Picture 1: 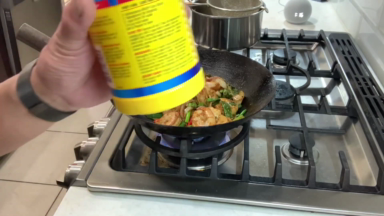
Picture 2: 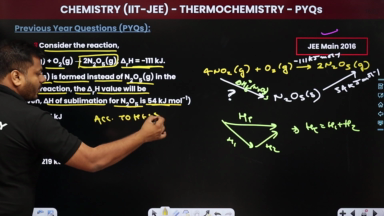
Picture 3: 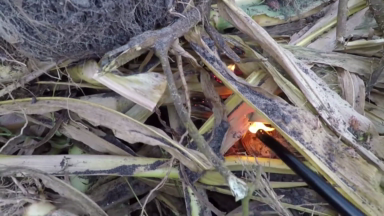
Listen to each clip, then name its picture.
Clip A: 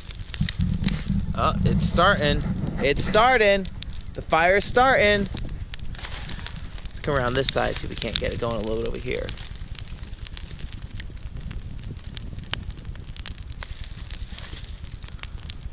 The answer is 3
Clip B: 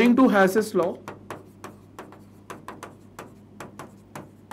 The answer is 2